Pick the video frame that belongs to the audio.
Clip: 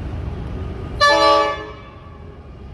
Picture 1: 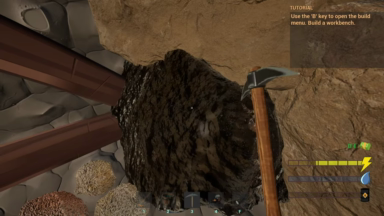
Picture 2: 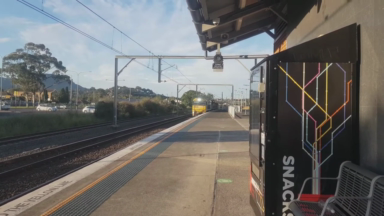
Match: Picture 2